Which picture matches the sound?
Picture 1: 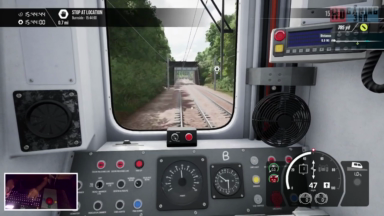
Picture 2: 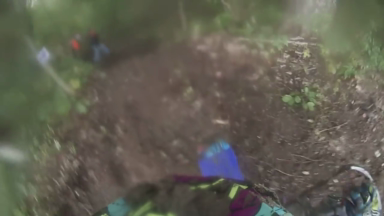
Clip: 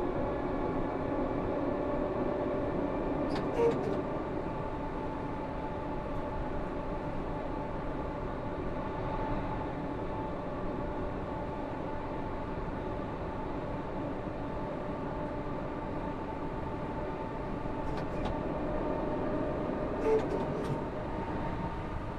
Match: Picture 1